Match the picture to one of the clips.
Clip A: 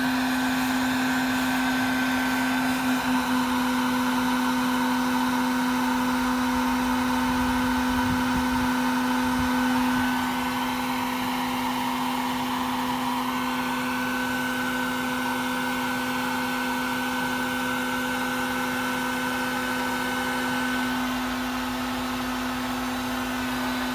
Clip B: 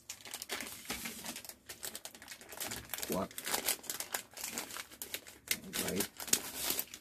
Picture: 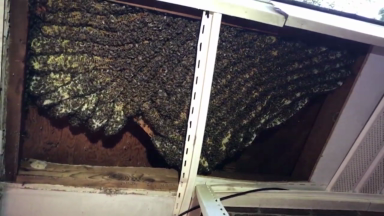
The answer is A